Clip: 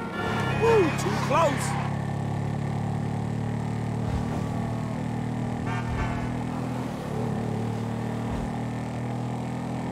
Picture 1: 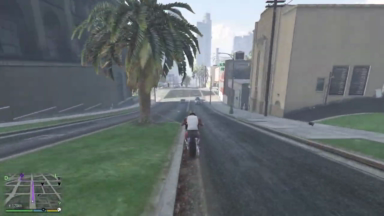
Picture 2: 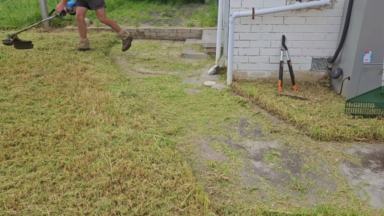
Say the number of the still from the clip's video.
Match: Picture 1